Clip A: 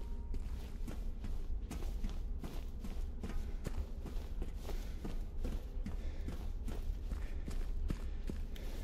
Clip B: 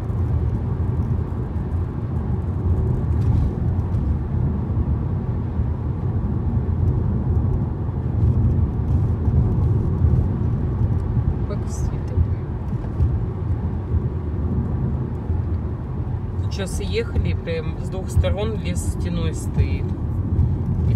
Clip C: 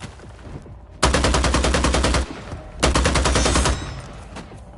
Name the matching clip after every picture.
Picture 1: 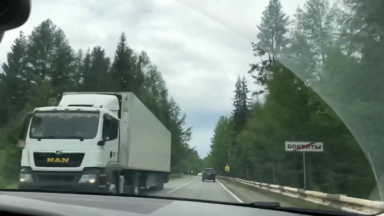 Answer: B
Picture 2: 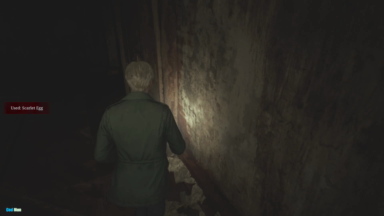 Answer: A